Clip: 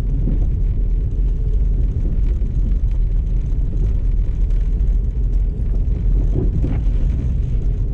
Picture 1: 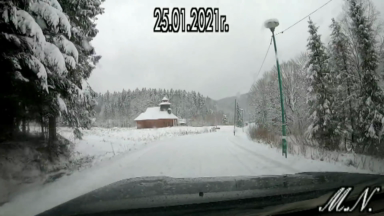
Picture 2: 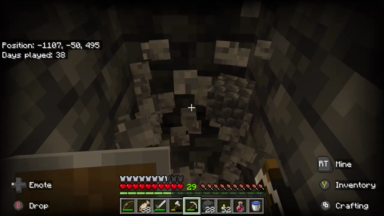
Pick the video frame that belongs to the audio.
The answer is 1